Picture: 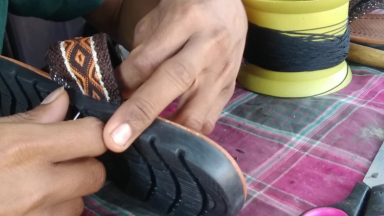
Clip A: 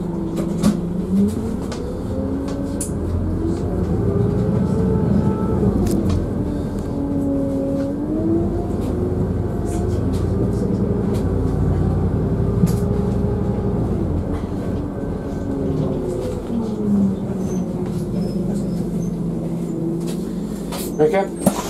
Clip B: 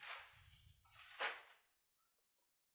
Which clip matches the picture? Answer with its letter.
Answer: B